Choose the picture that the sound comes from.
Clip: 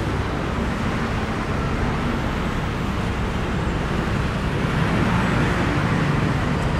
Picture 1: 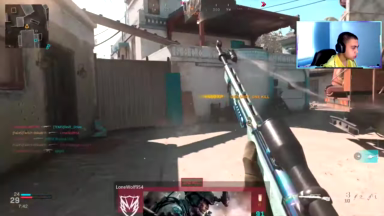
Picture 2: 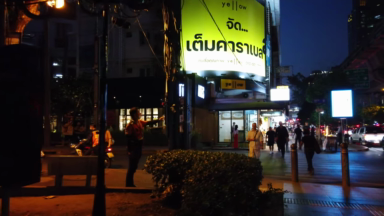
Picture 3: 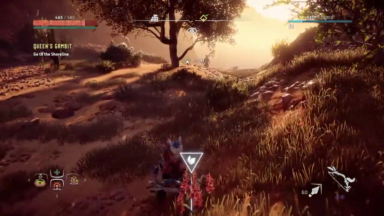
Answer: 2